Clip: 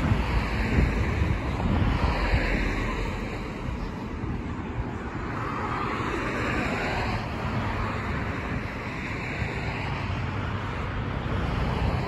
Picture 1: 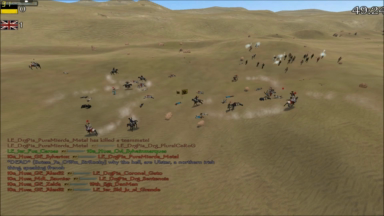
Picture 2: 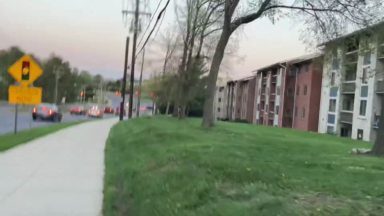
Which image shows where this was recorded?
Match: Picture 2